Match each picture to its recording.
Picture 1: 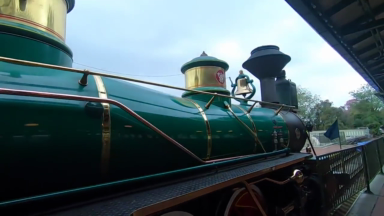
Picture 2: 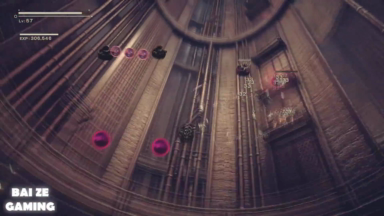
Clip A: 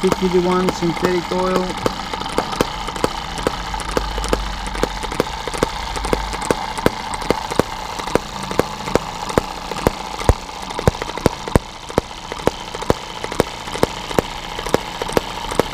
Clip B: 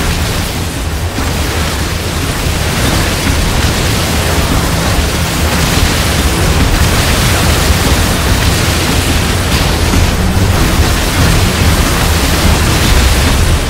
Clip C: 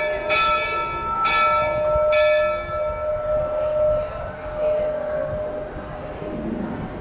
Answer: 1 C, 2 B